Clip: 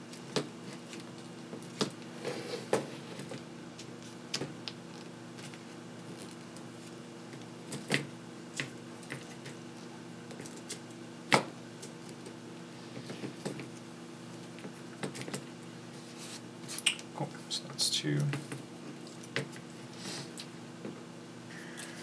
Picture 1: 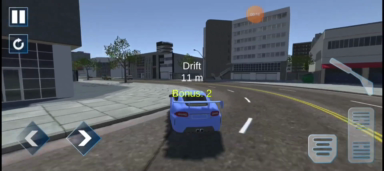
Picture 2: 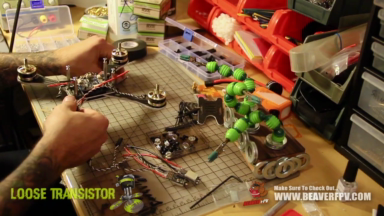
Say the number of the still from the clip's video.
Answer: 2